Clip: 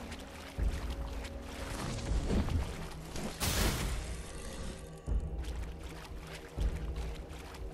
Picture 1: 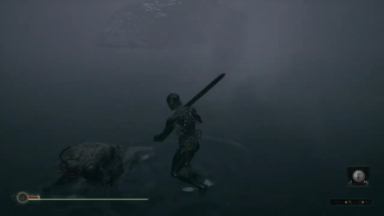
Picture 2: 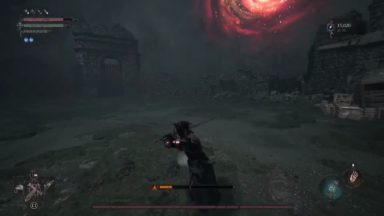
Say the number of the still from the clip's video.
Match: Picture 1